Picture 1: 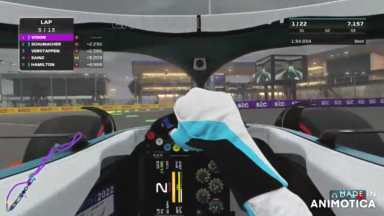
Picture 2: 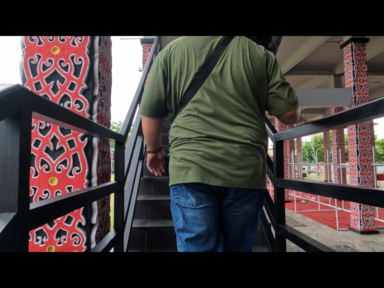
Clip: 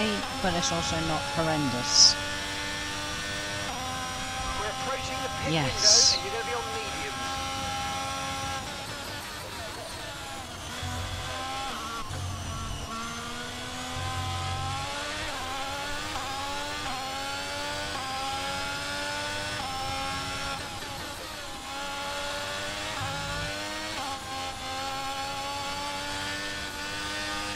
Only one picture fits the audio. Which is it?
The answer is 1